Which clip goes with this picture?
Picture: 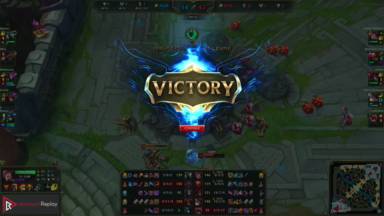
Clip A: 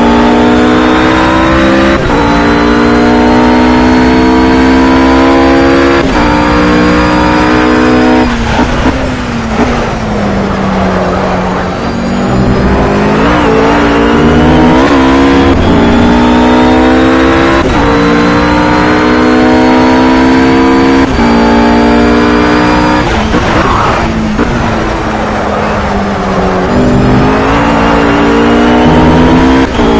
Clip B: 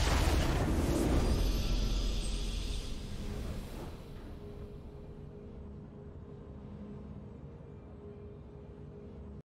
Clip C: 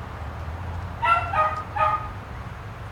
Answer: B